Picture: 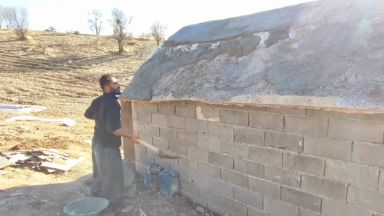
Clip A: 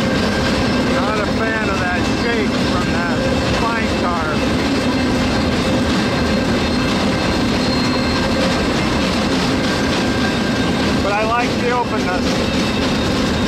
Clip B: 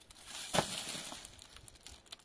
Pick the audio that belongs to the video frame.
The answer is B